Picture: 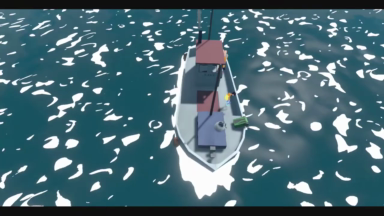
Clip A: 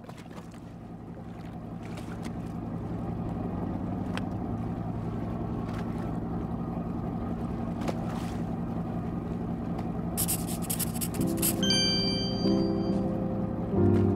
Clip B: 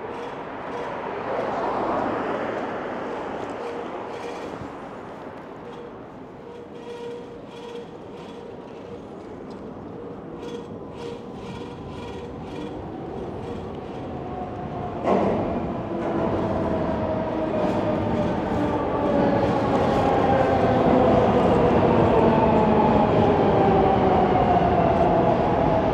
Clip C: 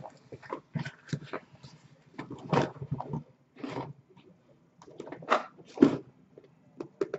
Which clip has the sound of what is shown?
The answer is A